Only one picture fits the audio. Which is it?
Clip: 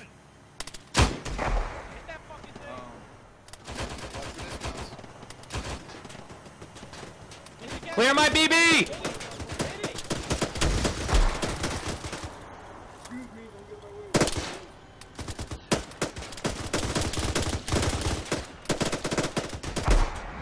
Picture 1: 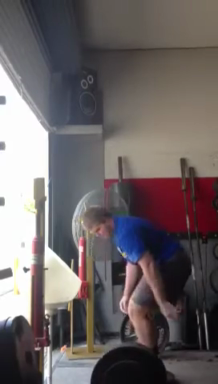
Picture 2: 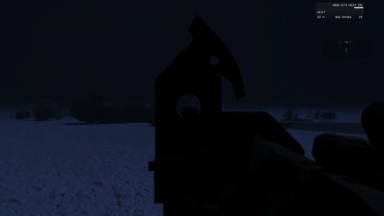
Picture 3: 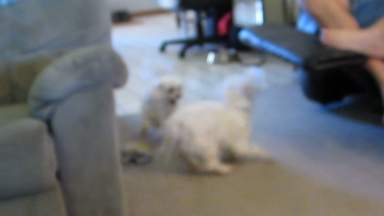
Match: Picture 2